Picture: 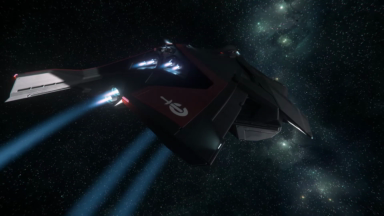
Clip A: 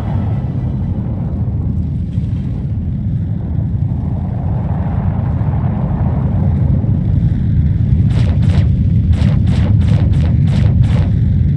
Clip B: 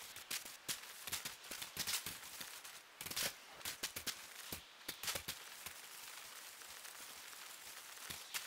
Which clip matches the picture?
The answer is A